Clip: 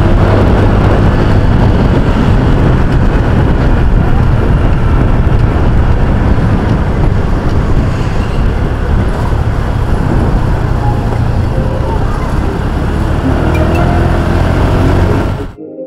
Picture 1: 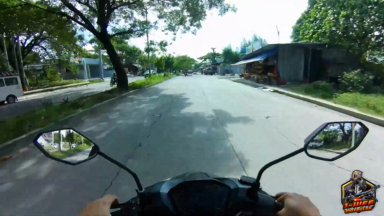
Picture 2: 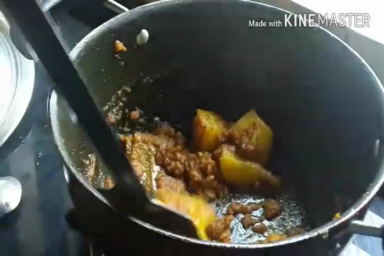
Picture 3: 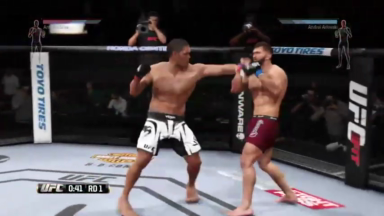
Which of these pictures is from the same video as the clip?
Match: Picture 1